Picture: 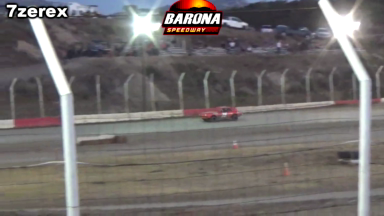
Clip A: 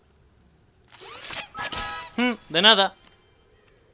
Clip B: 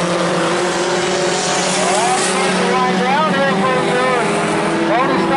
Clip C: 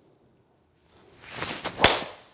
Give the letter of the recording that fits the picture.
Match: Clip B